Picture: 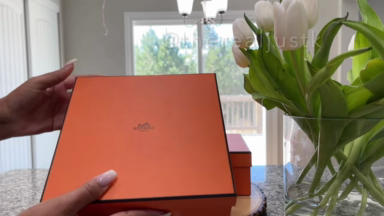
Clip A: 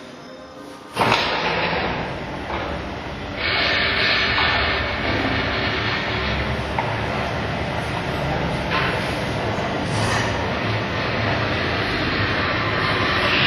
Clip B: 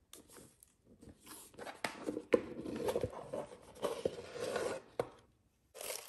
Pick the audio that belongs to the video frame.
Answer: B